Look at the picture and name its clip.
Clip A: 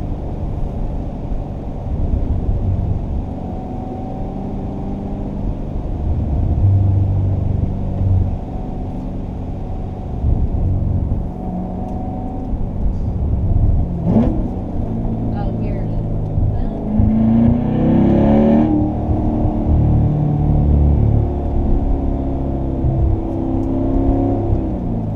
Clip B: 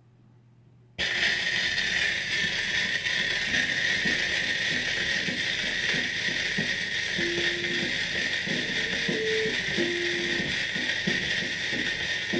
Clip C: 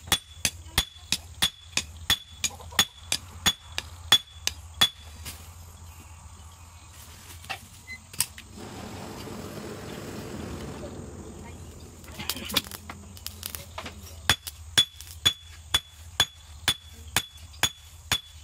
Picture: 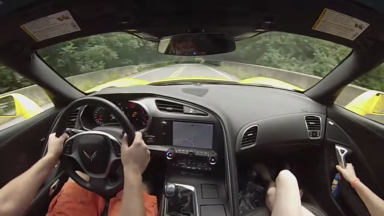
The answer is A